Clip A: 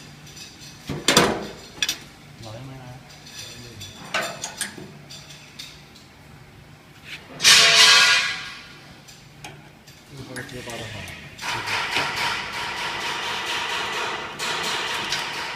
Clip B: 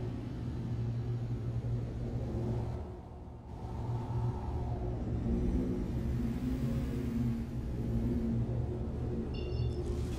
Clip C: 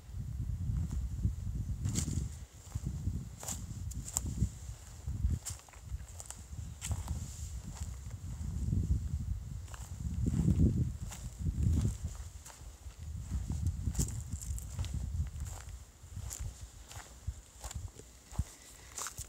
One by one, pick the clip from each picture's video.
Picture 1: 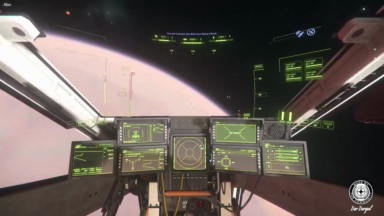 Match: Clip B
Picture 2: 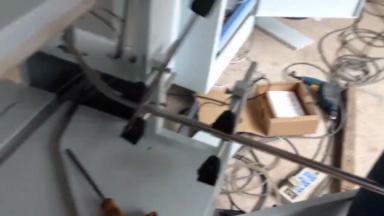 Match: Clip A